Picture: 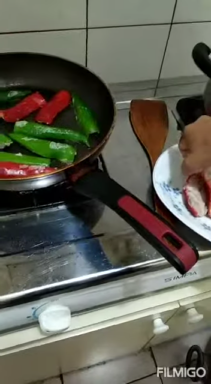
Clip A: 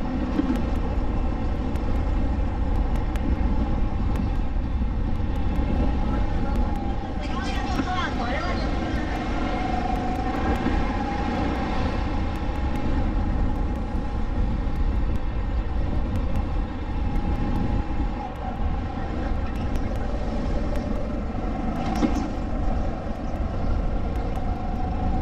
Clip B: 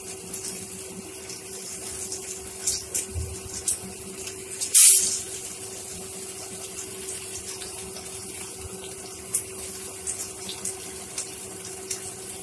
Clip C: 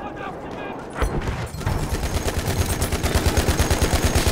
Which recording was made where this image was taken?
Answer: B